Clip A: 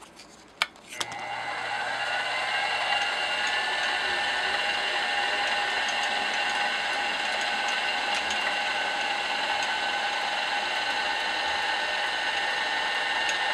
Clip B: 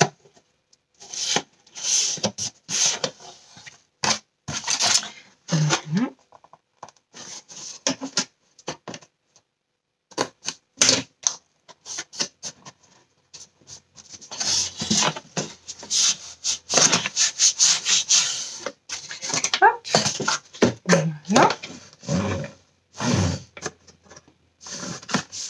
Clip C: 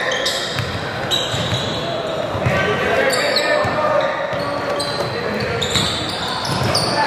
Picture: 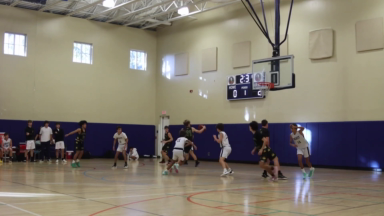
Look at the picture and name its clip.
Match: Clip C